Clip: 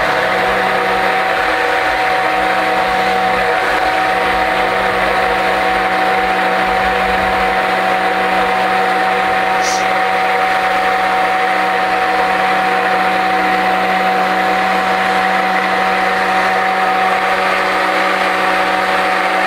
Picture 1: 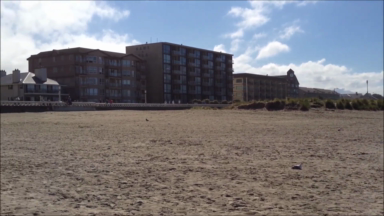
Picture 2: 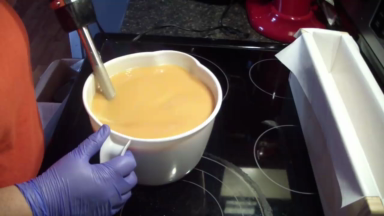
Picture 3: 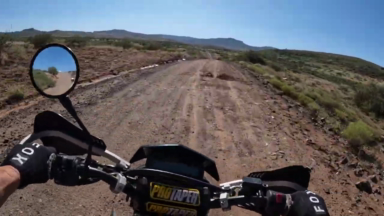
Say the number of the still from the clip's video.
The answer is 2